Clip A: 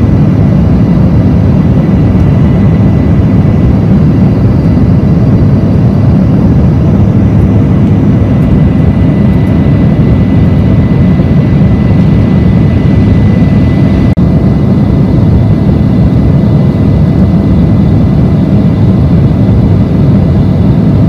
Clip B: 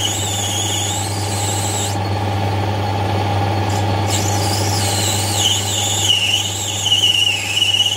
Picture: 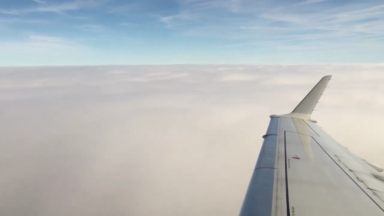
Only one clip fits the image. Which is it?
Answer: A